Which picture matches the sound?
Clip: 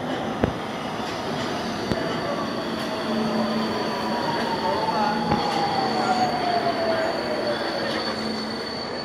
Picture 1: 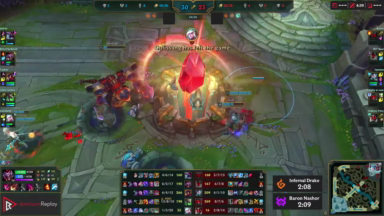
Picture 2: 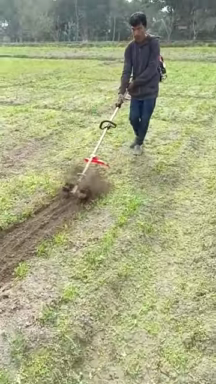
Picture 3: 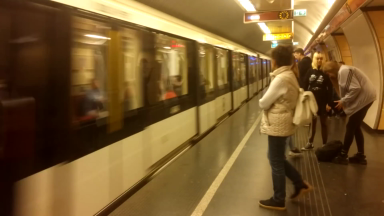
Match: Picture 3